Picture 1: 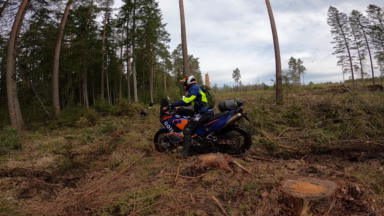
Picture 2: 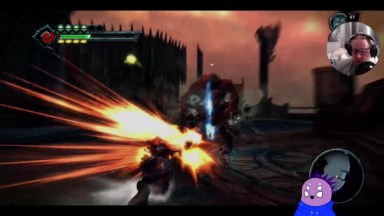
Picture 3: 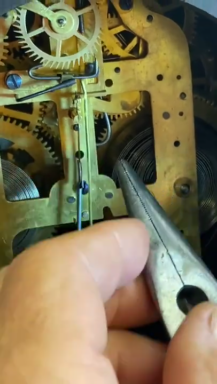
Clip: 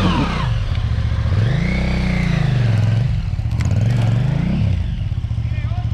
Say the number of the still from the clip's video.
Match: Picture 1